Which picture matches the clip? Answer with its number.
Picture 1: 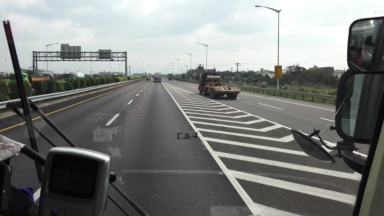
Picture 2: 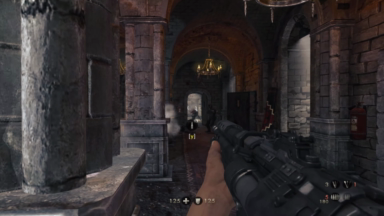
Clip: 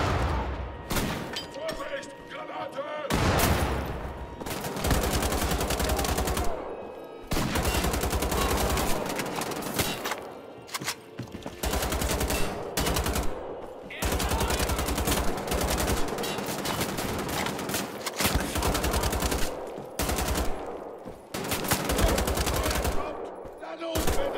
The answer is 2